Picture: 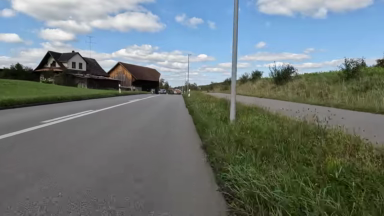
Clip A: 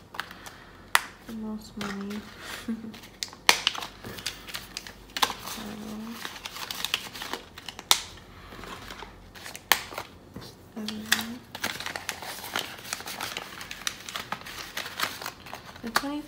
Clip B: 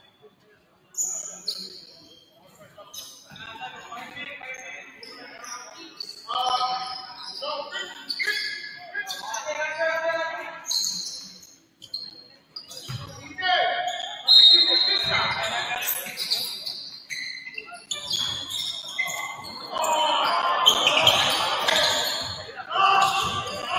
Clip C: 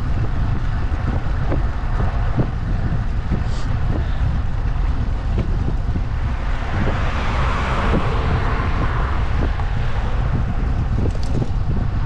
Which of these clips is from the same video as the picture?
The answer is C